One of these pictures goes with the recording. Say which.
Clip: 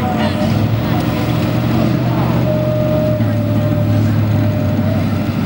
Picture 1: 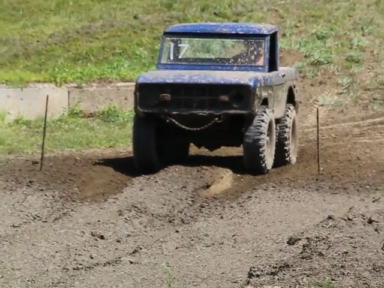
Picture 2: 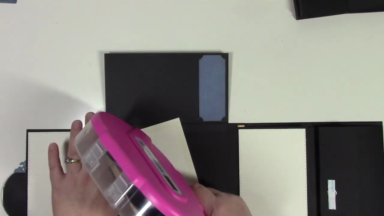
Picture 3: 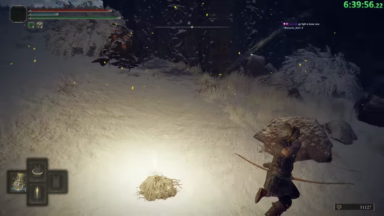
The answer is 1